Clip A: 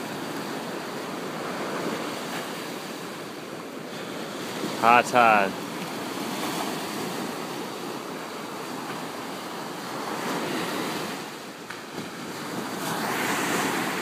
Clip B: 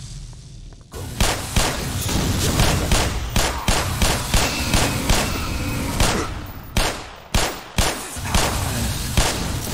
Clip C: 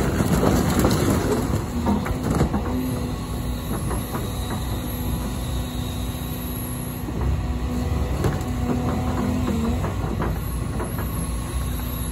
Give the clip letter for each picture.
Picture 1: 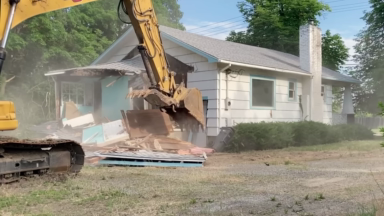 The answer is C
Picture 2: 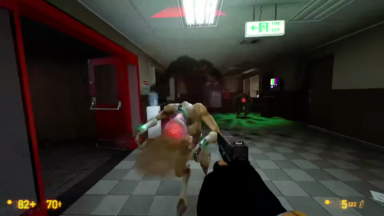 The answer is B